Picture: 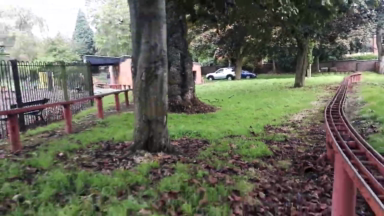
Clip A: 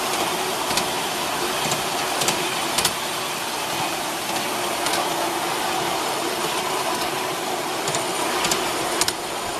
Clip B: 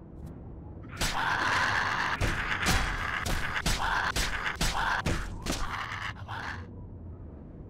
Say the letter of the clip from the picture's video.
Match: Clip A